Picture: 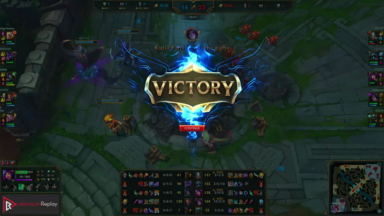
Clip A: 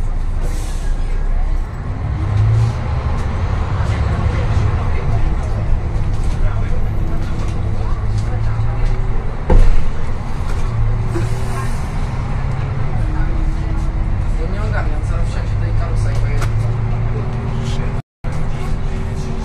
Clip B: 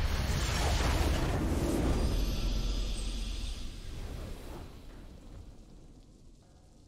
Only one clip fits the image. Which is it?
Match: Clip B